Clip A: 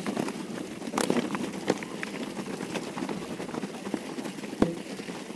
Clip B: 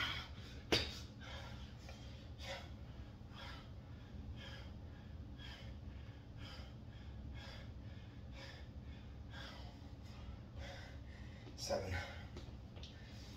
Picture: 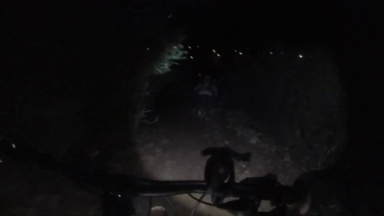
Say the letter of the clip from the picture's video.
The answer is A